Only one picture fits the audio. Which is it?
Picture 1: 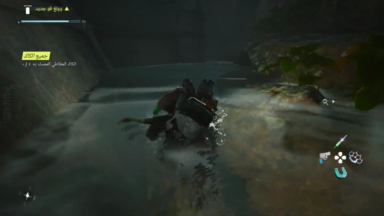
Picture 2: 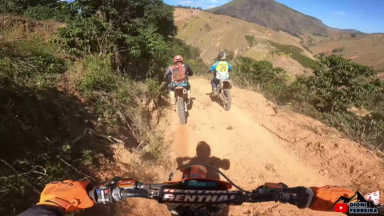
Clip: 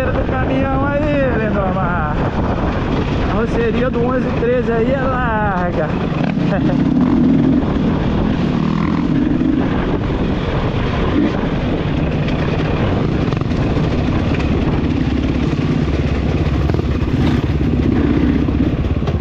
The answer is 2